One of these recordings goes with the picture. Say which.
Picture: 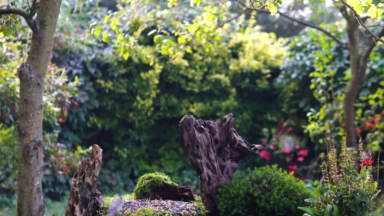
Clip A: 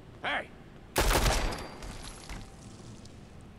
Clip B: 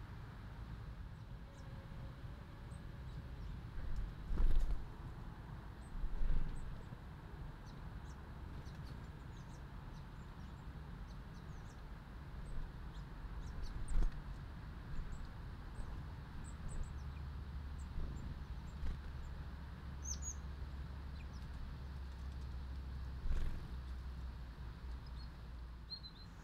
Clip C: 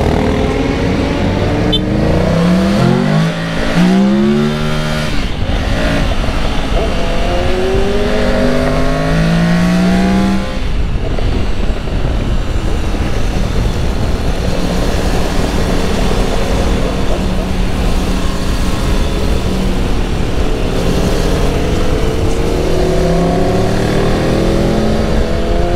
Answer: B